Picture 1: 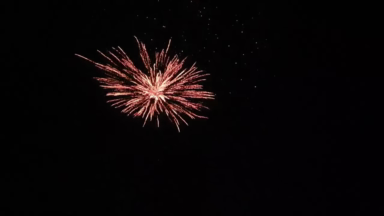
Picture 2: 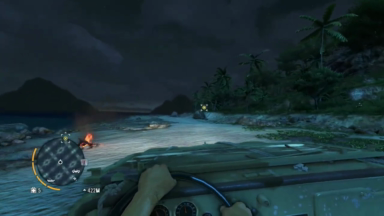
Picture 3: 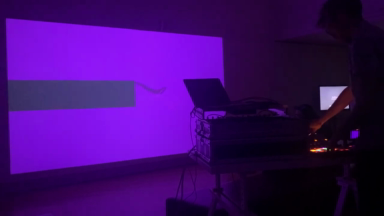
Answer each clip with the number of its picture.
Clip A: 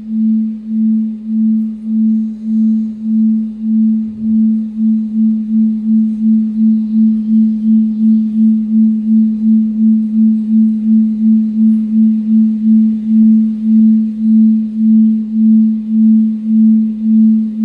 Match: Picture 3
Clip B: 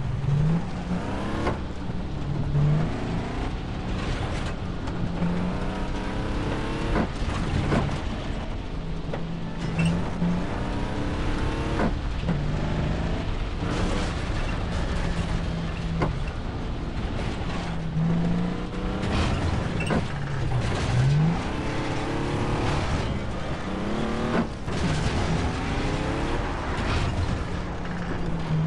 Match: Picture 2